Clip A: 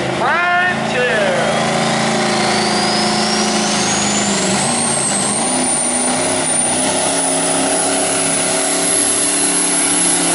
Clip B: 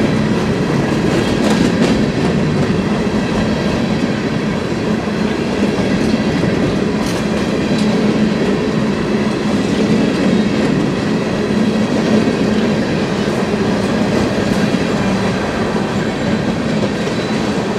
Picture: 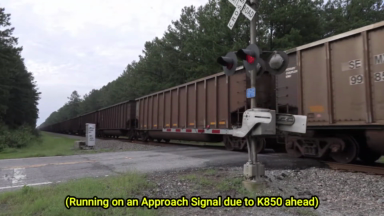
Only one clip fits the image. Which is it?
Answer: B